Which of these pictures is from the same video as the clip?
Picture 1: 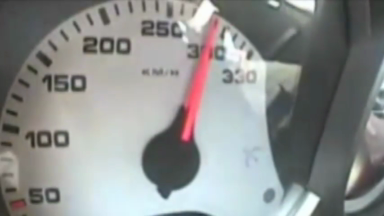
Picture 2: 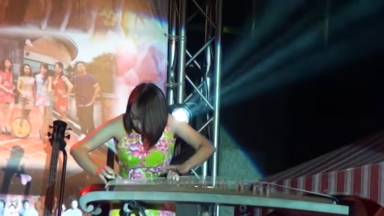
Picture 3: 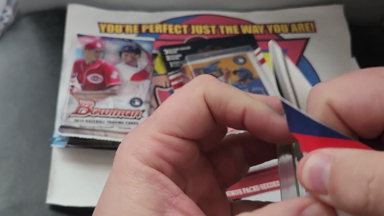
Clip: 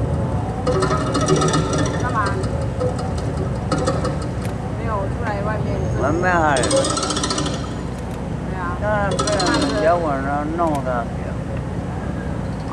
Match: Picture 2